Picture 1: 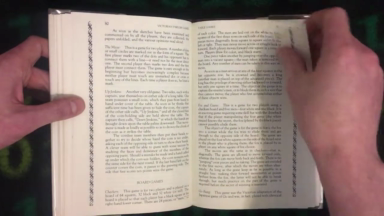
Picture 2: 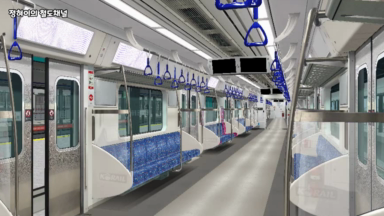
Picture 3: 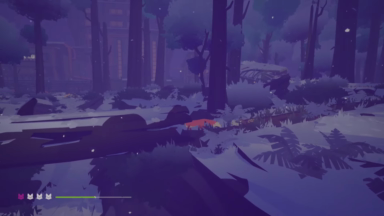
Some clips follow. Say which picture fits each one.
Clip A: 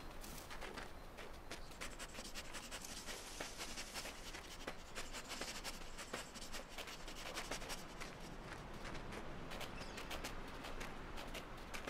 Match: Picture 3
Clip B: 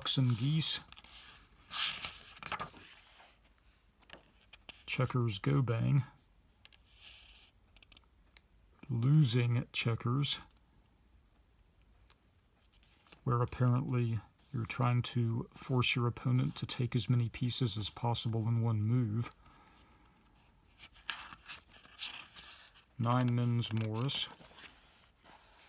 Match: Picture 1